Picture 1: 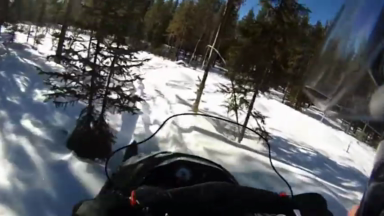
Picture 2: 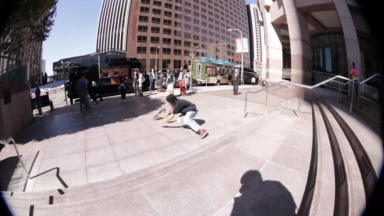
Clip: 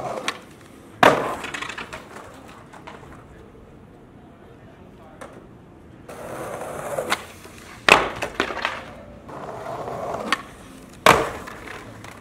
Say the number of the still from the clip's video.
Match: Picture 2